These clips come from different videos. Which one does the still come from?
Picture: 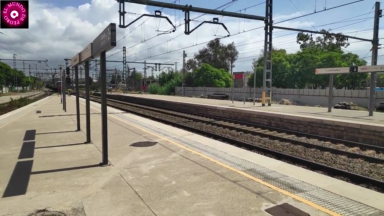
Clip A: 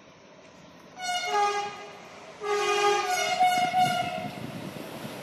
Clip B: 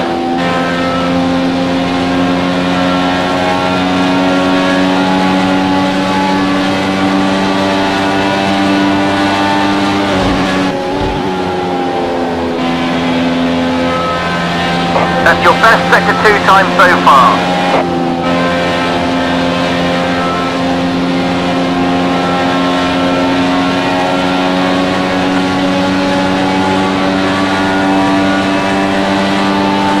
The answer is A